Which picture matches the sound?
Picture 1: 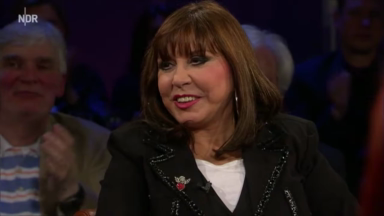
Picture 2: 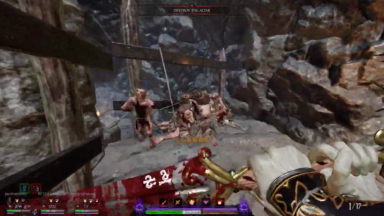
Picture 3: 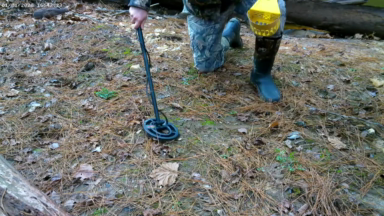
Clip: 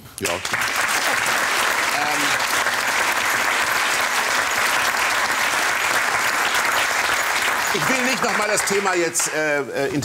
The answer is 1